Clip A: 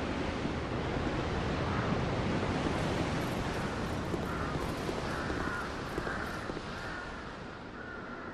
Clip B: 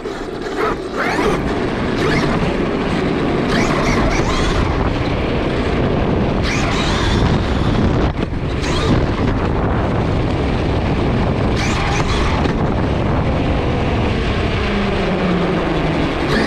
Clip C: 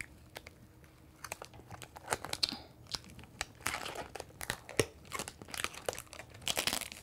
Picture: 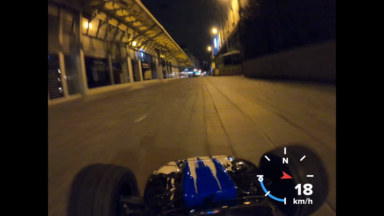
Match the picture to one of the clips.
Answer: B